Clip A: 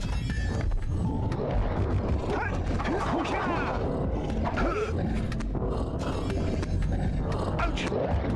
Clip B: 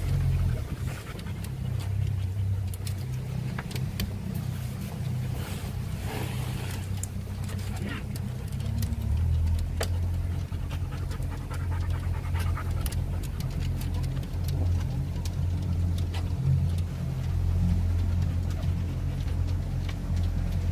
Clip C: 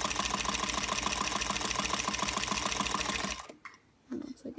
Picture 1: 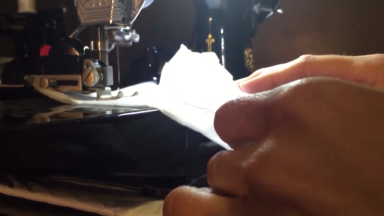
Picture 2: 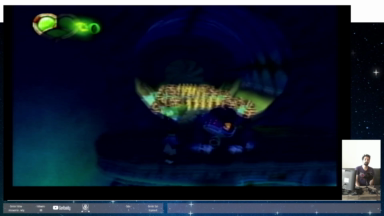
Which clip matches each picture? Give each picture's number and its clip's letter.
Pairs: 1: C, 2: A